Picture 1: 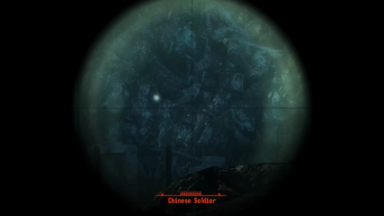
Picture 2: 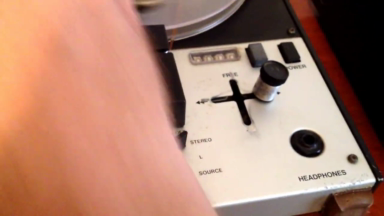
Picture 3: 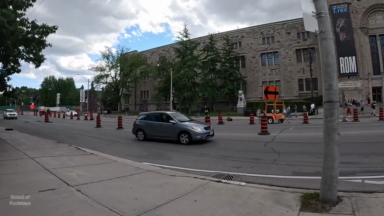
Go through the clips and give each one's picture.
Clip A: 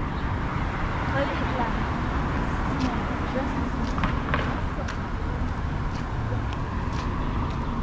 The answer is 3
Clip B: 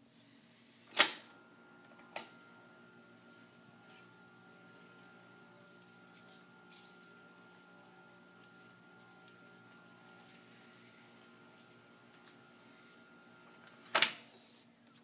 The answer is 2